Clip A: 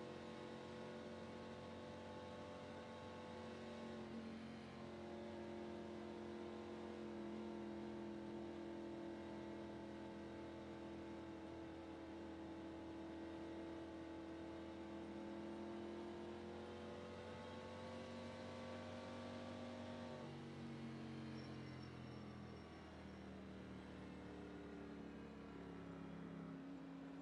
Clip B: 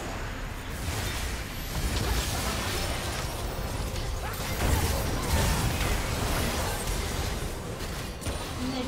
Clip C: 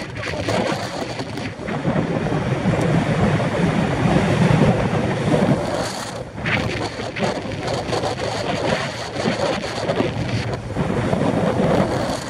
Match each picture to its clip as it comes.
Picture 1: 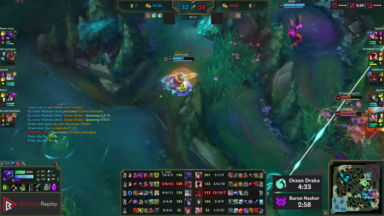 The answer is B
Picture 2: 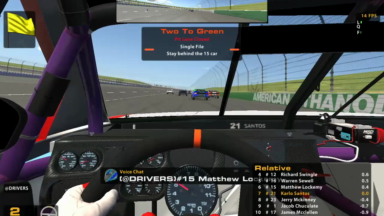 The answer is A